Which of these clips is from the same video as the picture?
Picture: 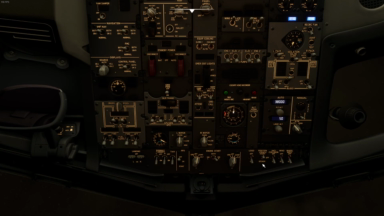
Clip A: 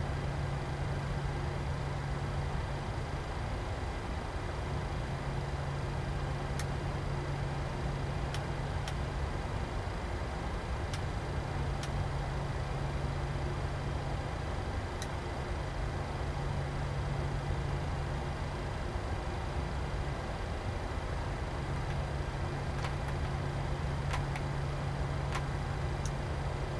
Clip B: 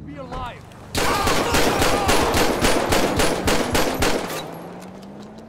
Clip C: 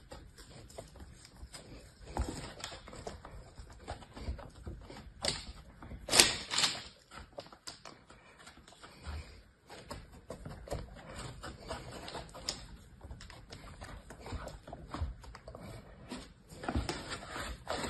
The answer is A